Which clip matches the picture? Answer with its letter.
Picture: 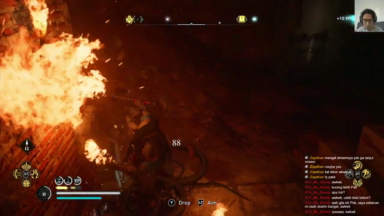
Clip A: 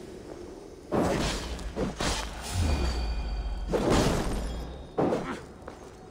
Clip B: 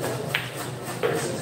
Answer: A